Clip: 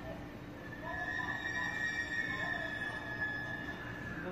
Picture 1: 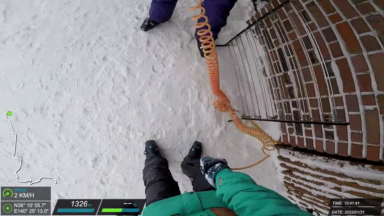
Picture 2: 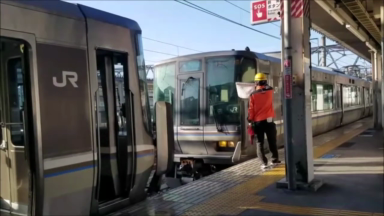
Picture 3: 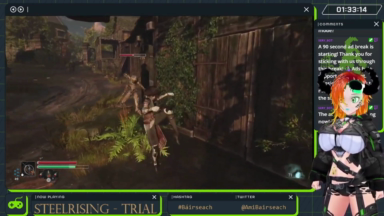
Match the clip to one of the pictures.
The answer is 2